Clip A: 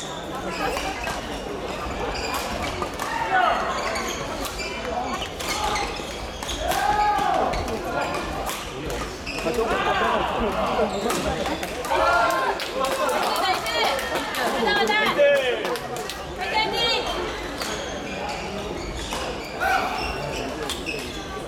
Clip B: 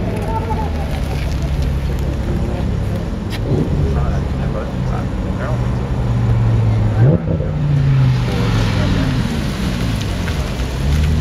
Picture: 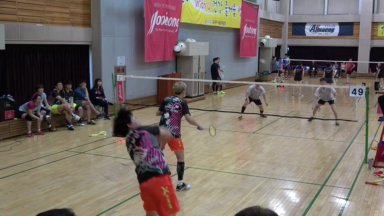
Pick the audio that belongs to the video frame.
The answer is A